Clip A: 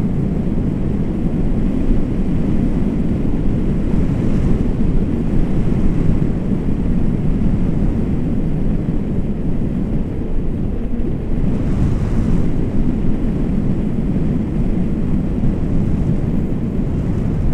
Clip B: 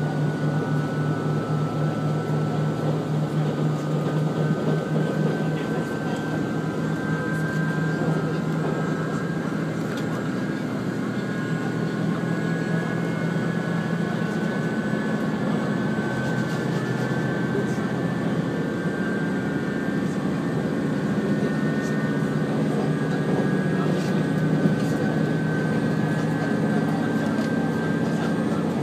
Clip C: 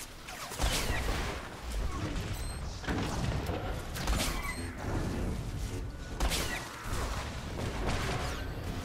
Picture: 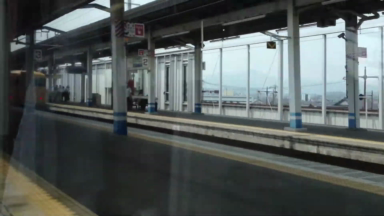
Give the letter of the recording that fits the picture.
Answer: B